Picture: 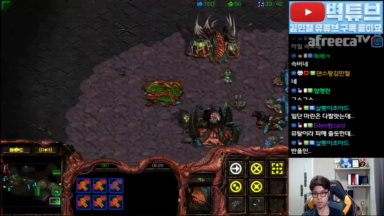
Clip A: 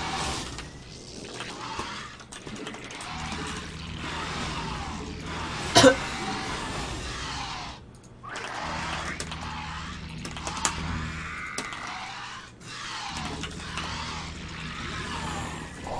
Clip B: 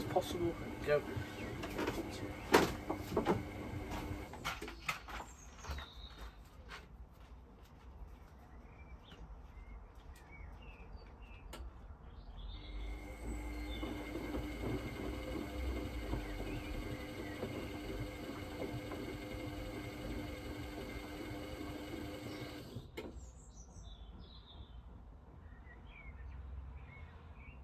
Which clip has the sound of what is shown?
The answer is A